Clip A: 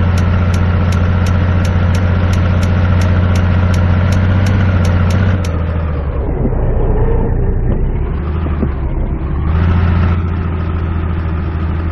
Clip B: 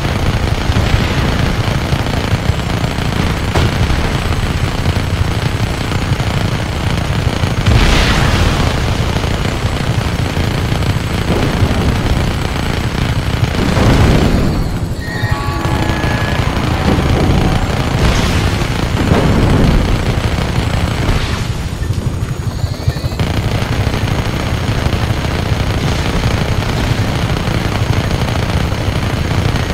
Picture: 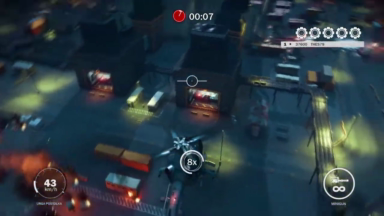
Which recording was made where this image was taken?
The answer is B